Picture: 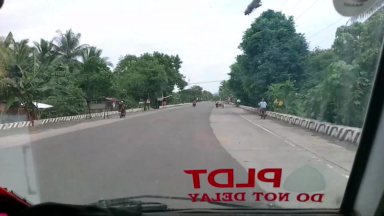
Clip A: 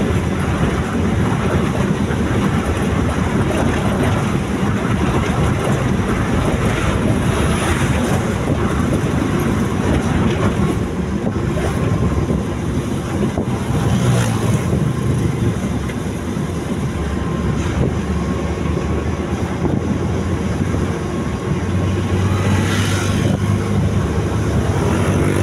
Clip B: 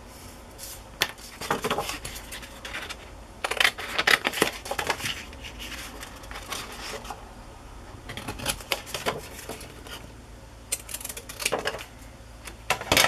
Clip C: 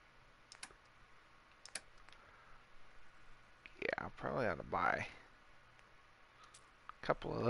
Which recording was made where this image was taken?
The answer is A